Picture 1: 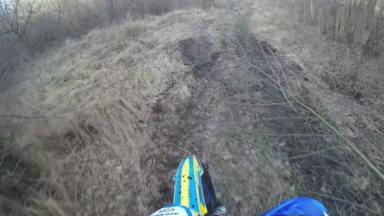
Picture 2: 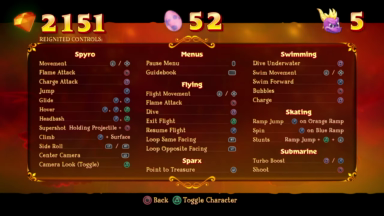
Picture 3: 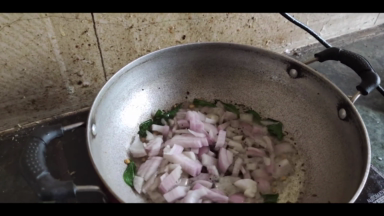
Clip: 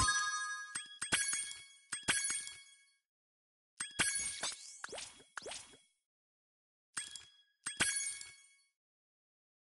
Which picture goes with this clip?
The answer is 2